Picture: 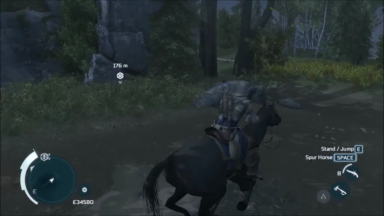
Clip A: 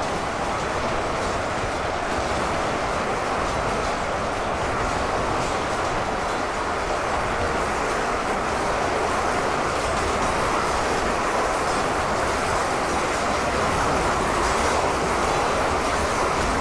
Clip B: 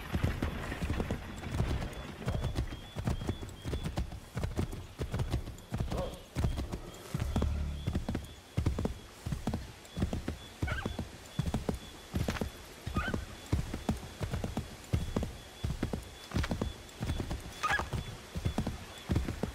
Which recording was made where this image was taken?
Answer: B